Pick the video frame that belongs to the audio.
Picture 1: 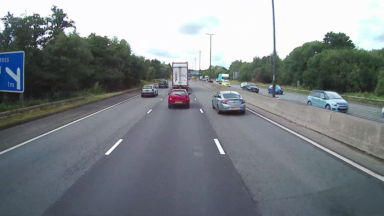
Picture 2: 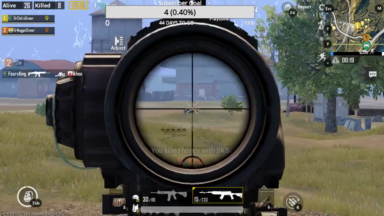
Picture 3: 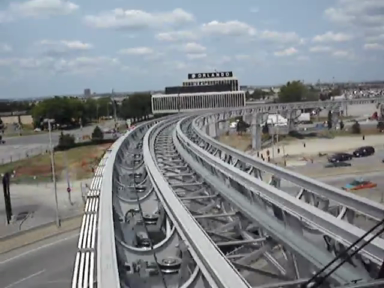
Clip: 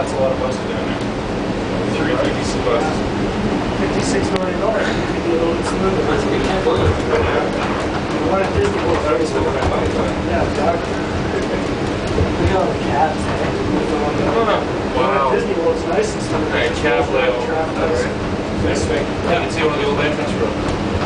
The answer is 3